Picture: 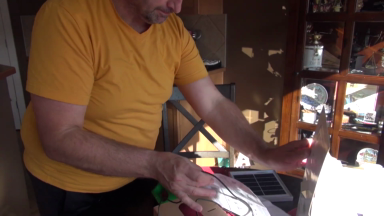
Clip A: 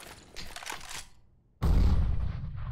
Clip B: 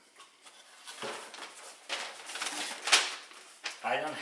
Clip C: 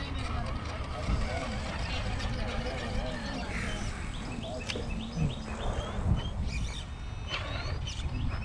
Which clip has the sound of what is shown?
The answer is B